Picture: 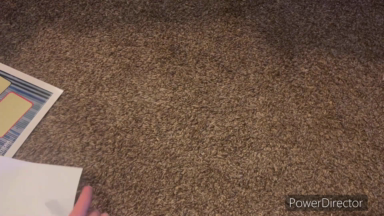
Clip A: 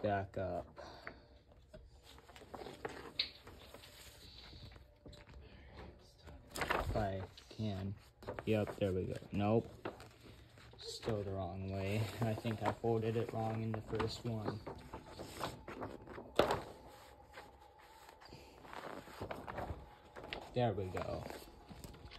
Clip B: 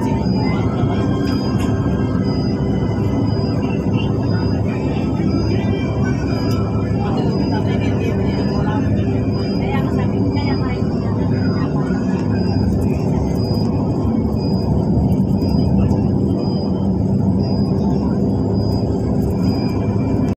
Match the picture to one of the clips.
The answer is A